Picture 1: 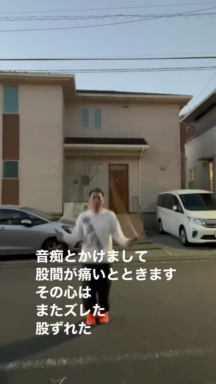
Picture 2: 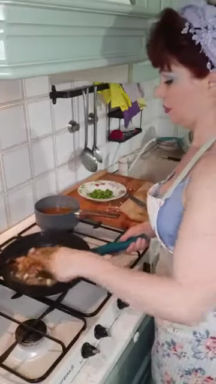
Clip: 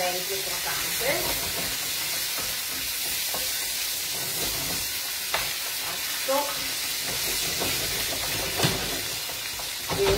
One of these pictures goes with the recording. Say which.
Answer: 2